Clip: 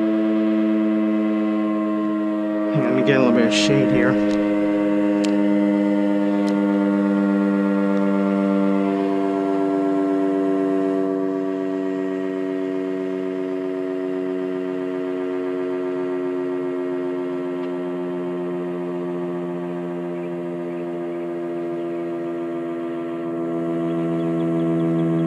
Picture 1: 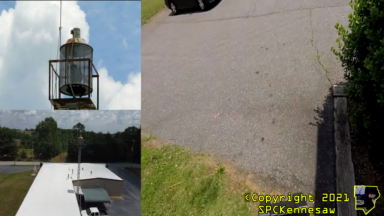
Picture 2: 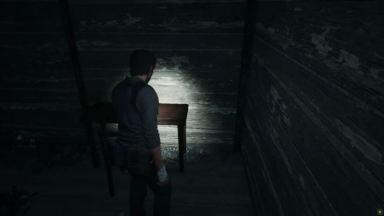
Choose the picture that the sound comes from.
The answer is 1